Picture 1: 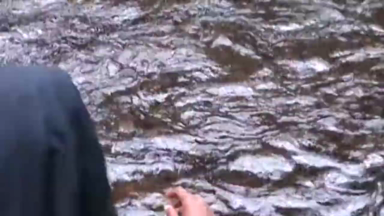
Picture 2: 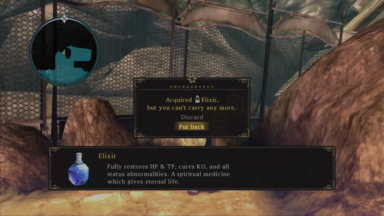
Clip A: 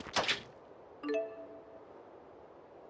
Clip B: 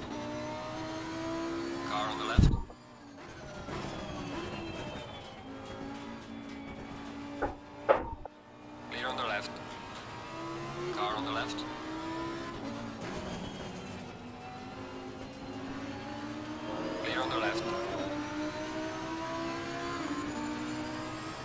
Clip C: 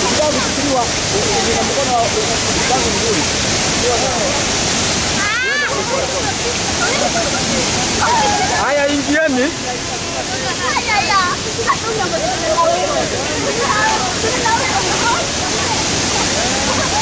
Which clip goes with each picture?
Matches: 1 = C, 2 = A